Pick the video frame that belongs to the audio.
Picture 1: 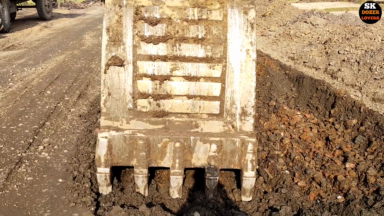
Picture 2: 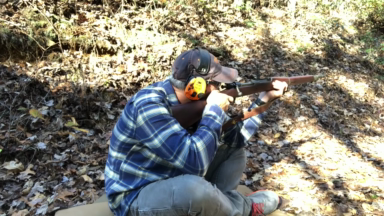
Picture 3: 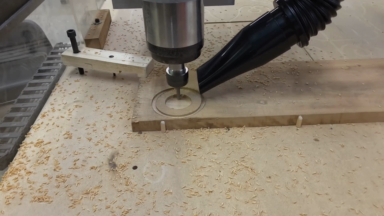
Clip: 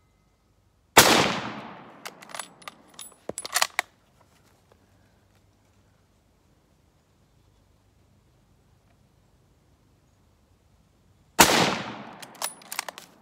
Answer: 2